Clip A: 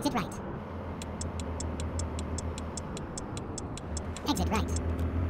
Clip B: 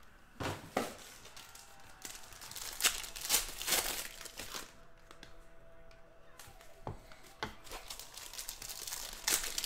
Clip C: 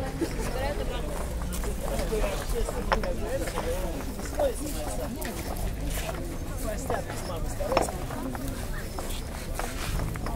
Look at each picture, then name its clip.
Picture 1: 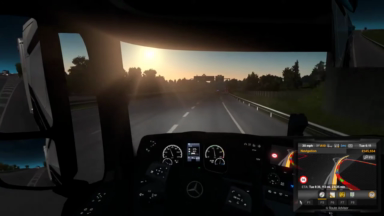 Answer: A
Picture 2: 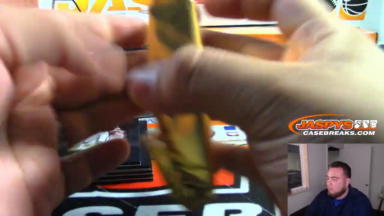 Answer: B